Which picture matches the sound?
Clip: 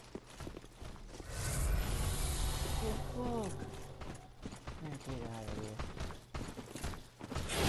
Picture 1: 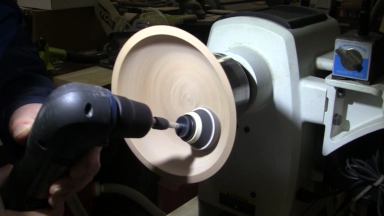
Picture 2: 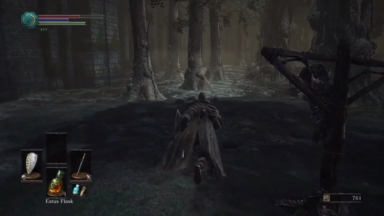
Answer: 2